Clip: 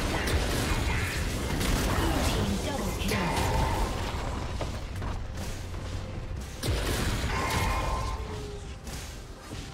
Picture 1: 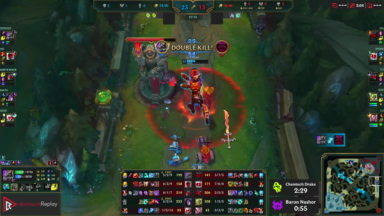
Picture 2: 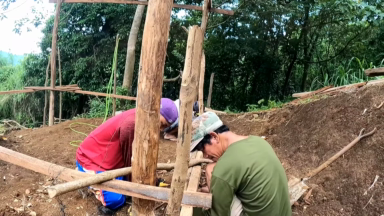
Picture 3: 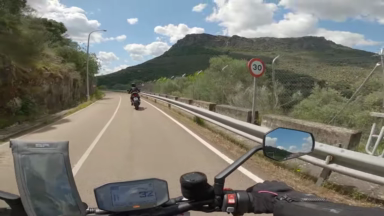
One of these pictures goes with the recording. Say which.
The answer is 1